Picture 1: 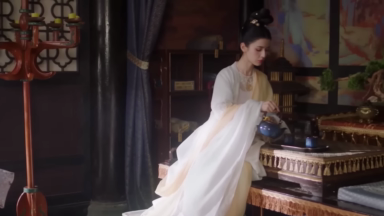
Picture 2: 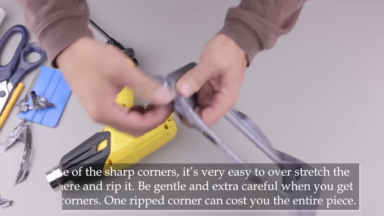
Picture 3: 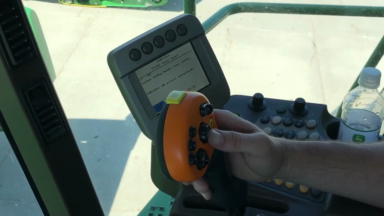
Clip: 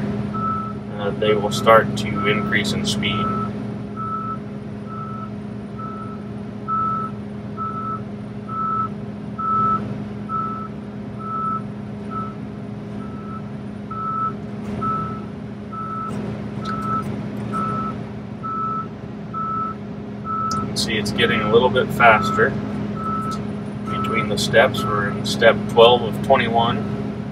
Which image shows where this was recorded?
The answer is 3